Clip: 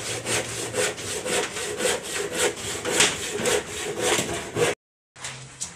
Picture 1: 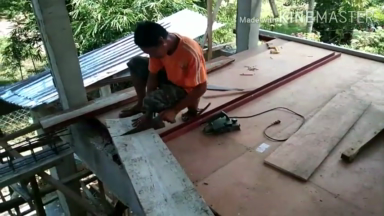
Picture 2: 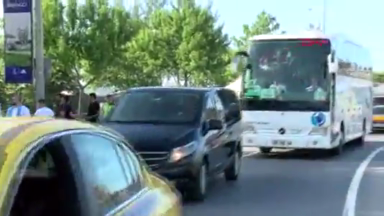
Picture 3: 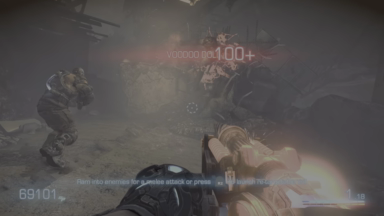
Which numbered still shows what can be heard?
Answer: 1